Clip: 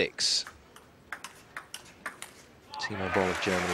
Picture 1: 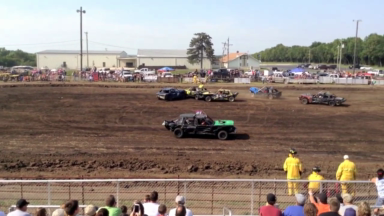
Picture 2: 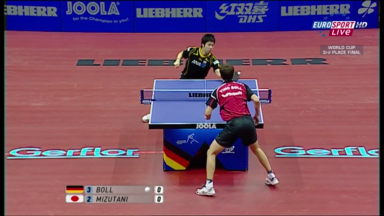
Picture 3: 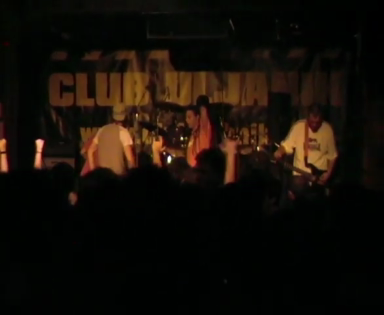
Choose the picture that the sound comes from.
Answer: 2